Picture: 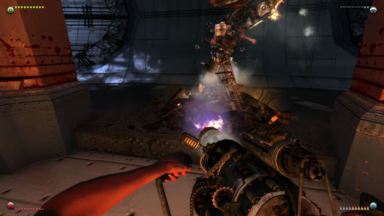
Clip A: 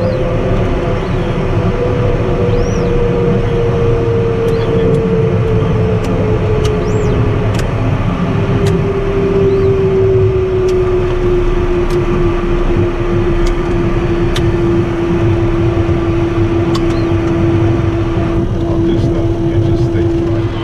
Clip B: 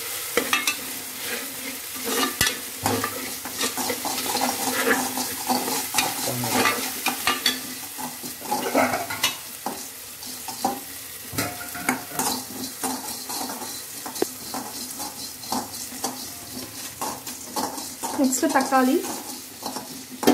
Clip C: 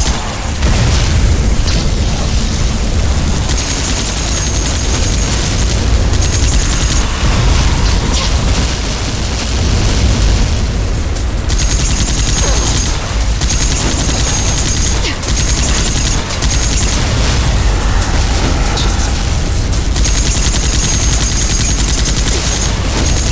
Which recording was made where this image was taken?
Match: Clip C